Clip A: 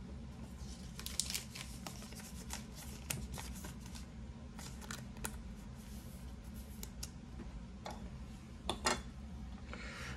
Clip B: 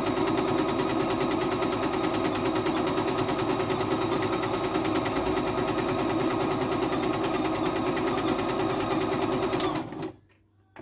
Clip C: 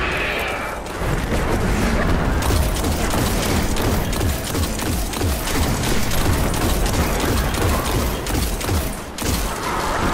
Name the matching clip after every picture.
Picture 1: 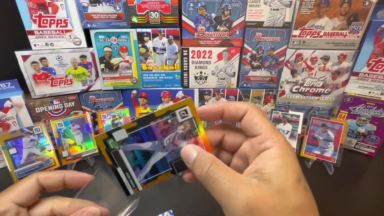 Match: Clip A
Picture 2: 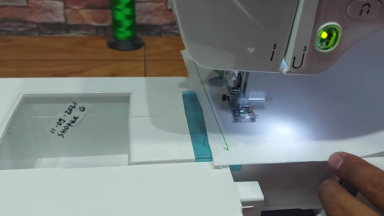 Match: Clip B